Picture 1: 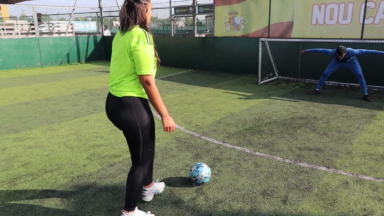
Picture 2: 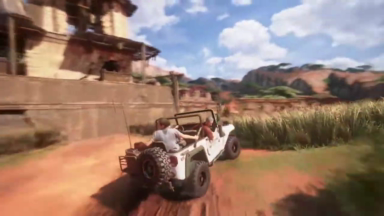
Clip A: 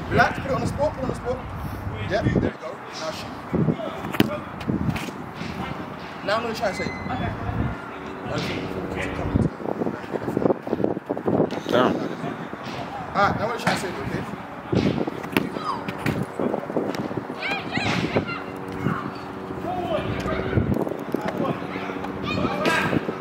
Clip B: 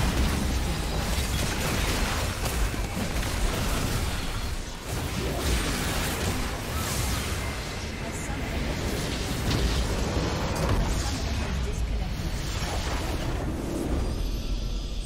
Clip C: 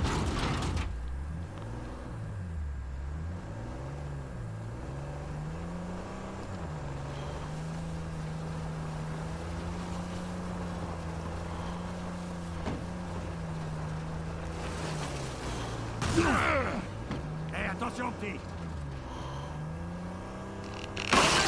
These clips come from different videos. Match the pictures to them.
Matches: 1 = A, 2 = C